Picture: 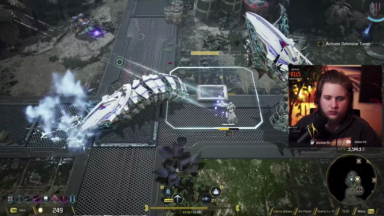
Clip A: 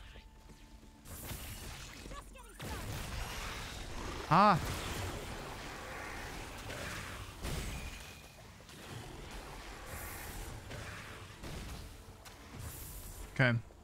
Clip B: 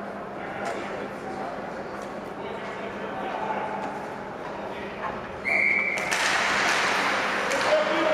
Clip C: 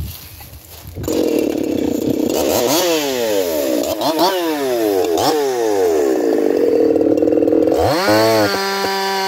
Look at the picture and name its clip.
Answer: A